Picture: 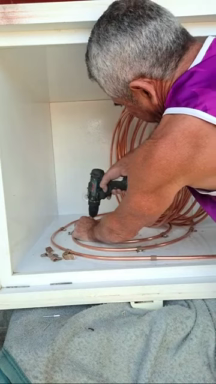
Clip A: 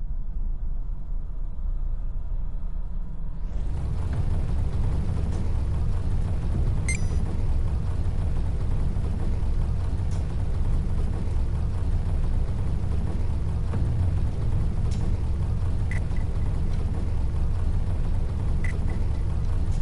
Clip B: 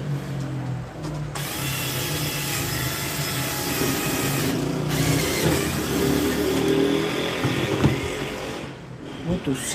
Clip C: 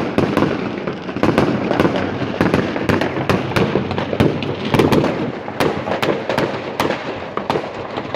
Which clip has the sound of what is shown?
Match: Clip B